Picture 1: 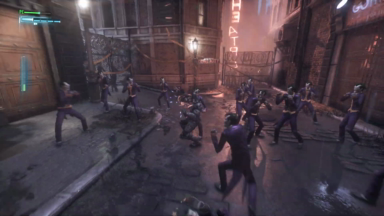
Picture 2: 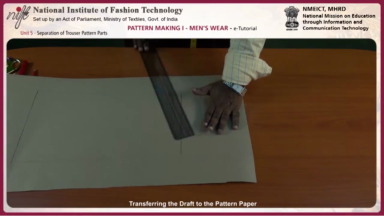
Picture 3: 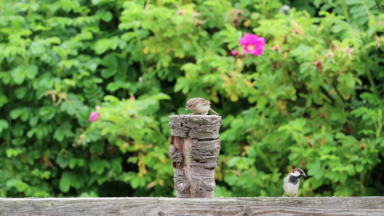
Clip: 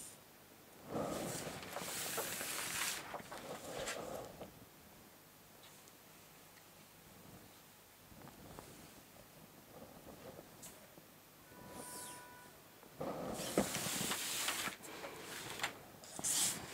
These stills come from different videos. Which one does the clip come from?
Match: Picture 2